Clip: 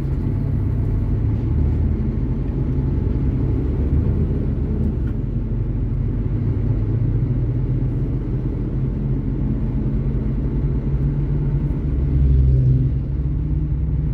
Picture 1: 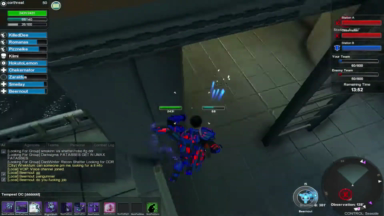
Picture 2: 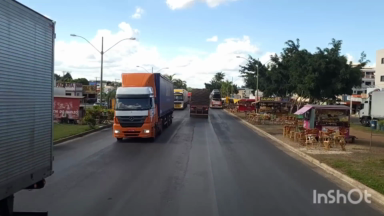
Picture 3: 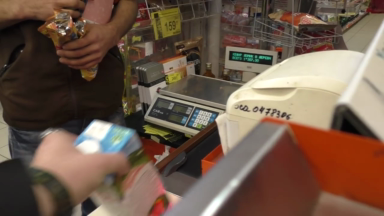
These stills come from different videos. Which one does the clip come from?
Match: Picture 2